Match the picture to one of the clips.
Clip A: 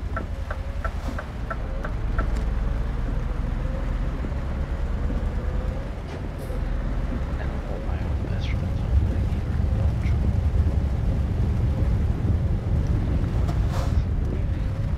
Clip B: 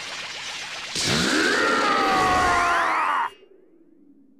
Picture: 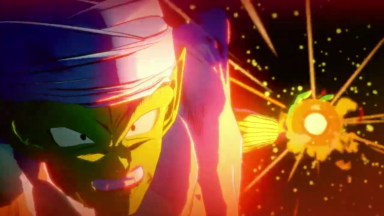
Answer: B